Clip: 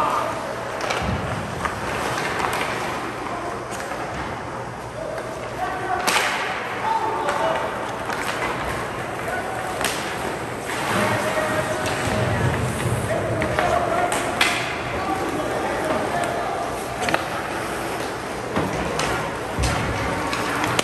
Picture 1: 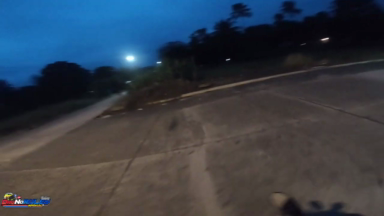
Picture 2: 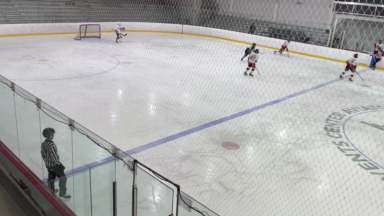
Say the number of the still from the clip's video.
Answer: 2